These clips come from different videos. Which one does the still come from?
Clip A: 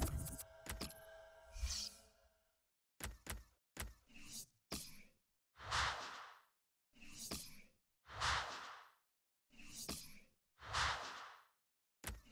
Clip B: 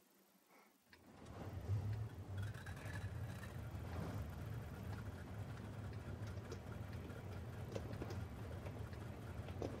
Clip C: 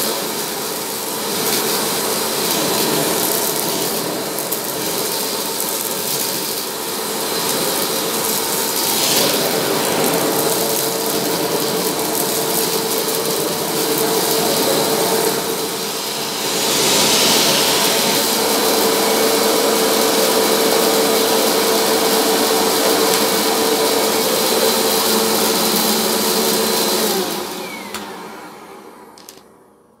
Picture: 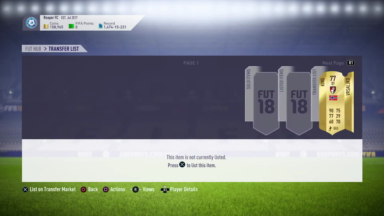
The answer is A